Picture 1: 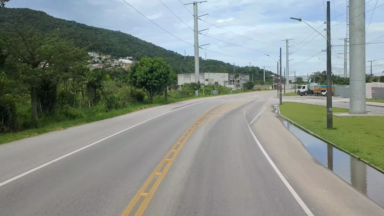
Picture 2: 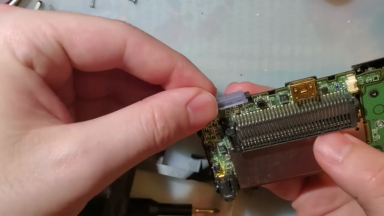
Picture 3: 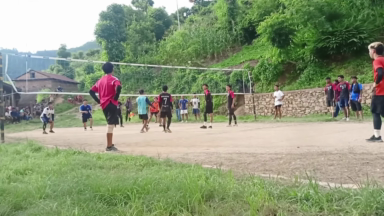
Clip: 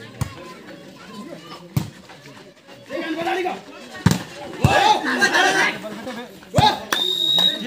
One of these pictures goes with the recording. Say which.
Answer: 3